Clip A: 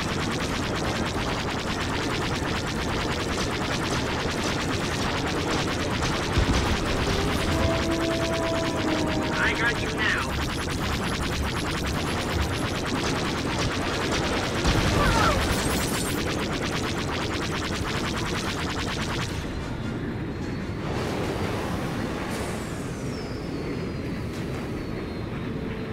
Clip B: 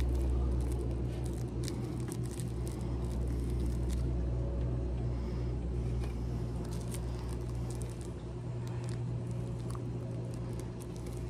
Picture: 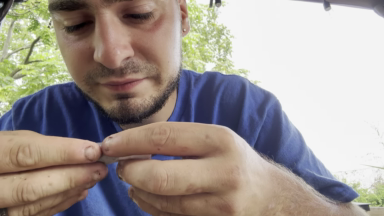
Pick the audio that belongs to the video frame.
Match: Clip B